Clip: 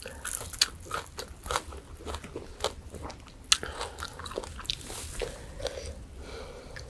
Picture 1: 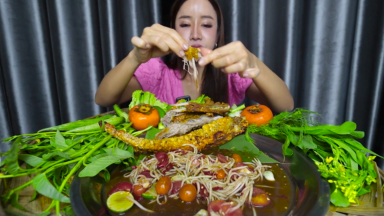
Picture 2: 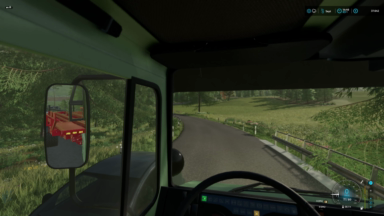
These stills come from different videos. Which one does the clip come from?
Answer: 1